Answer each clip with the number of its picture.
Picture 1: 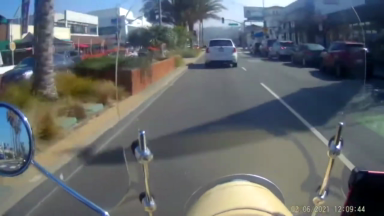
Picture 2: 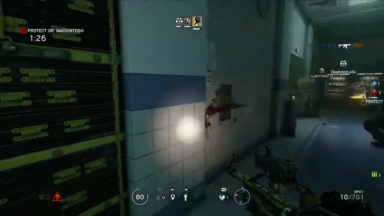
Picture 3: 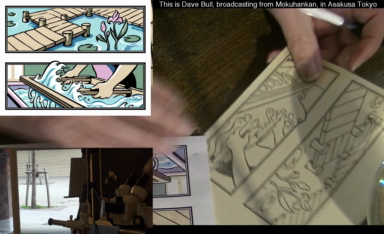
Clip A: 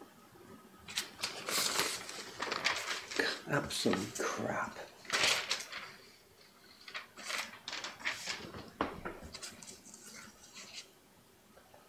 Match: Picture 3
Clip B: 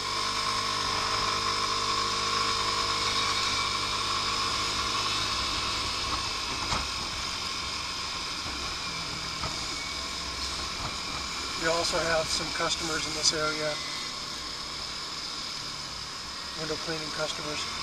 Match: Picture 1